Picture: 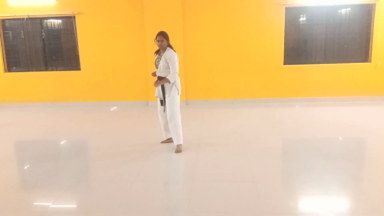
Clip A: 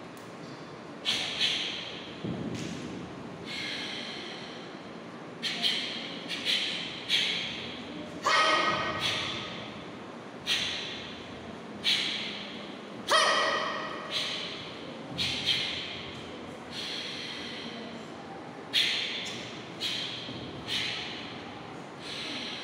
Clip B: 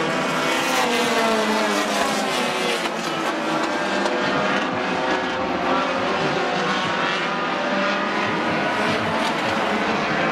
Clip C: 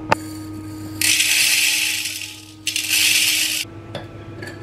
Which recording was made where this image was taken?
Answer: A